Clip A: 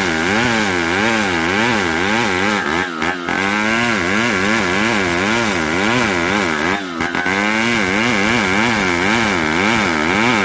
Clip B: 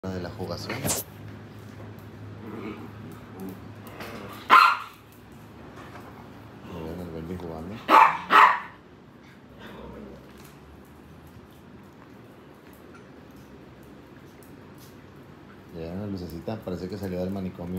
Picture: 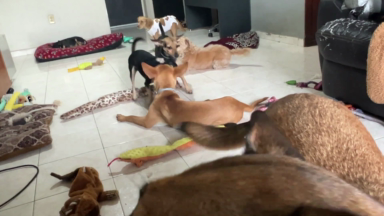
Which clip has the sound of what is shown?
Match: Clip B